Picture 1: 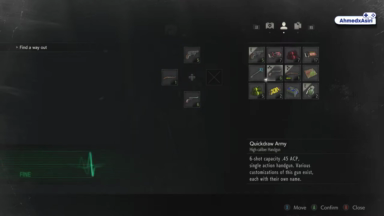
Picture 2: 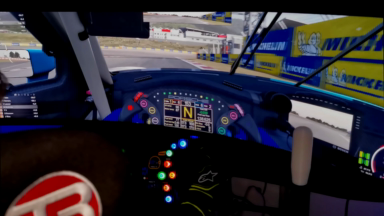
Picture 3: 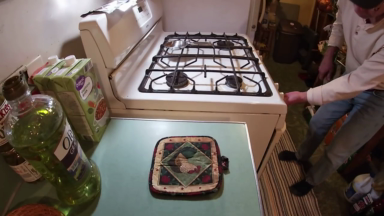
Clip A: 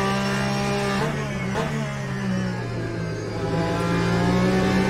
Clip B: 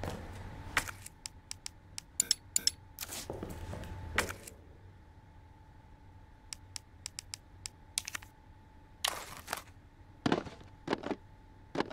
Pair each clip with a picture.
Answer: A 2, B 1